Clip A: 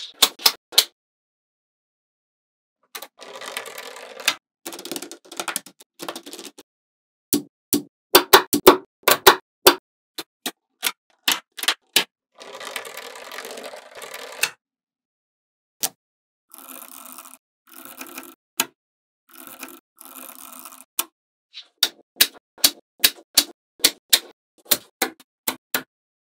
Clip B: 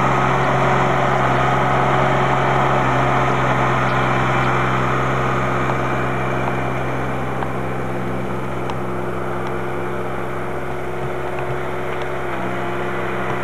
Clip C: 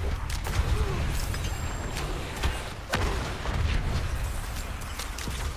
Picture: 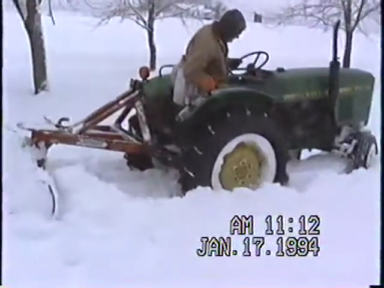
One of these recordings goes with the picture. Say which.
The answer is B